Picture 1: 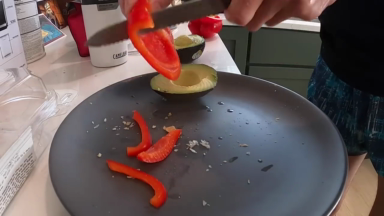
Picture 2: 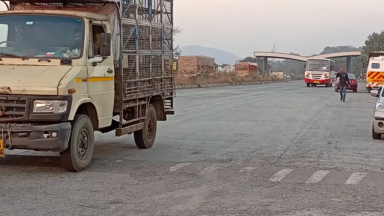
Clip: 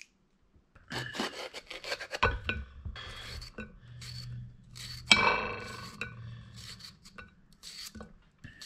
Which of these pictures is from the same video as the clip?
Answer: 1